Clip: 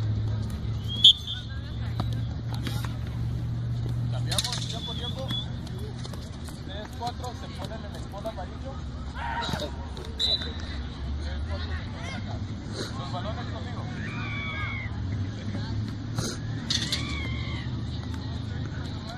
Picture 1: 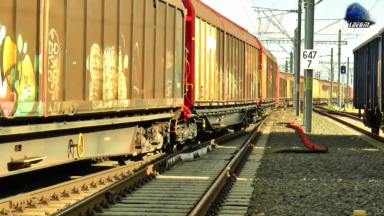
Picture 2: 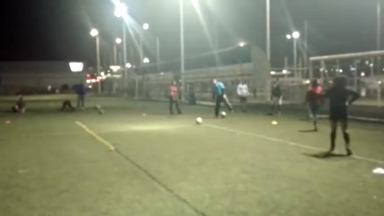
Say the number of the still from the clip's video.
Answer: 2